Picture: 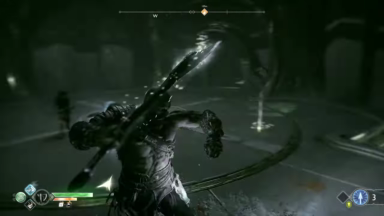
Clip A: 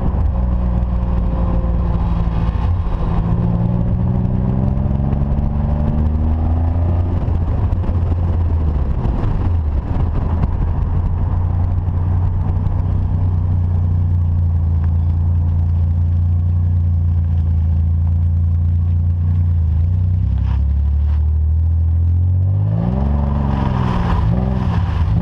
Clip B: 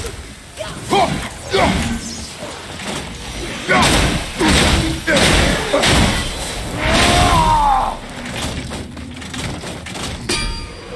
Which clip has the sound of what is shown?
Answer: B